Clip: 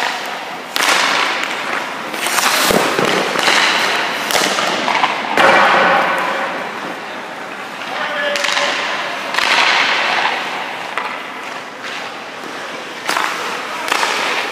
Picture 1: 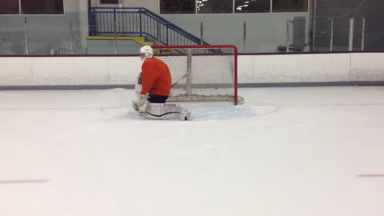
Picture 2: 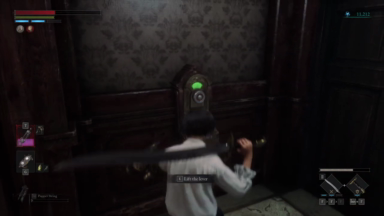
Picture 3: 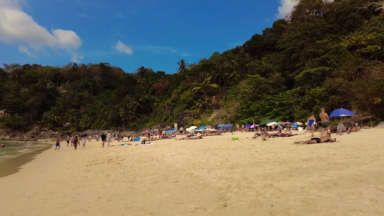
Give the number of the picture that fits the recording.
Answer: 1